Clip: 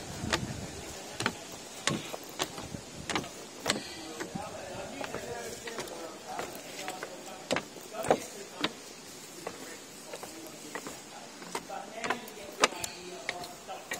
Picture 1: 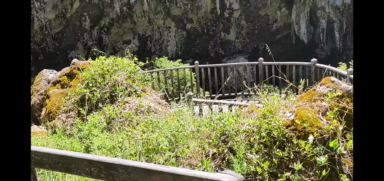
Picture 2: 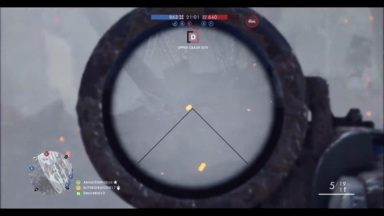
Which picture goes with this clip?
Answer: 1